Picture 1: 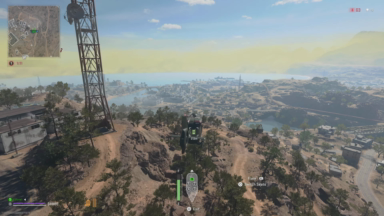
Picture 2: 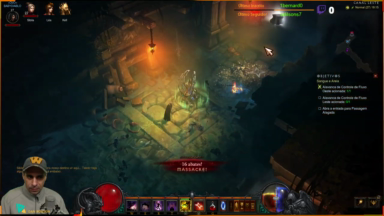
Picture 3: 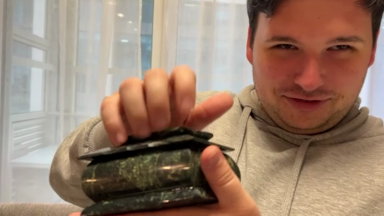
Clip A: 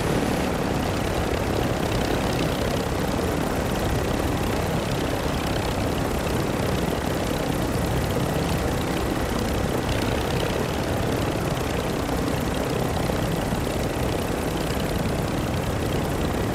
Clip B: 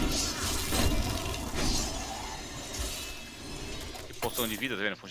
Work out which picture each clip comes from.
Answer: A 1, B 2